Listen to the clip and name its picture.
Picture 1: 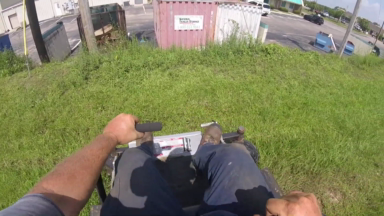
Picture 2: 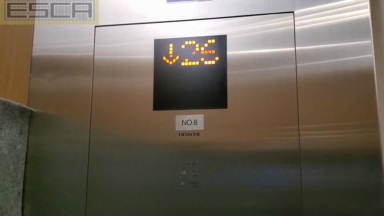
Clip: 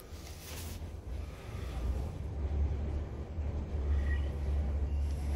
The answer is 2